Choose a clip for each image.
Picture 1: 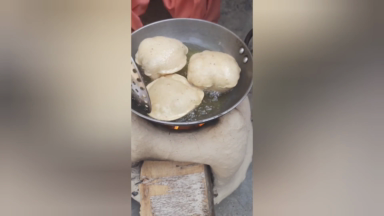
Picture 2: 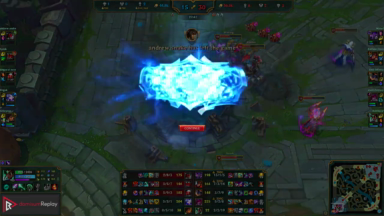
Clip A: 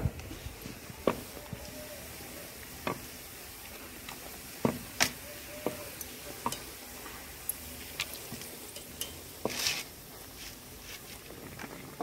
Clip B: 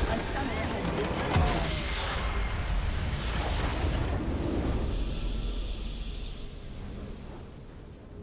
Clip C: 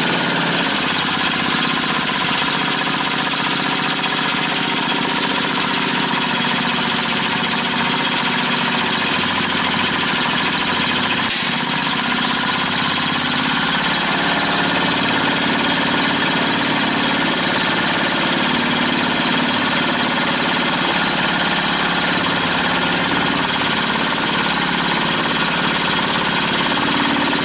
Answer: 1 A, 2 B